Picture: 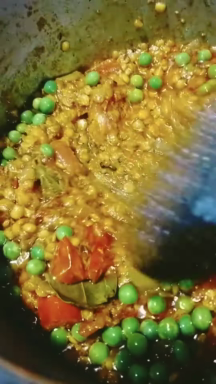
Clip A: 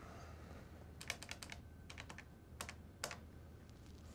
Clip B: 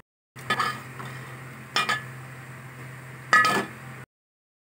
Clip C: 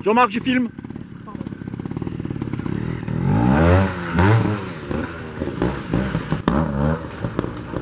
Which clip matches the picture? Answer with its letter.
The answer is B